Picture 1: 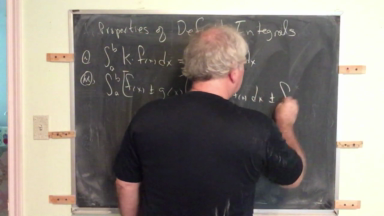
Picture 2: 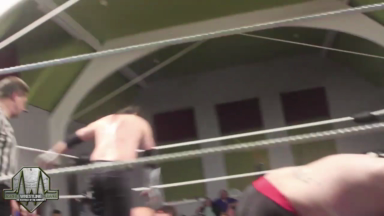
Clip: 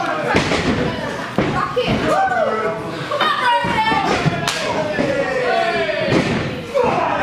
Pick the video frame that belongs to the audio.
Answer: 2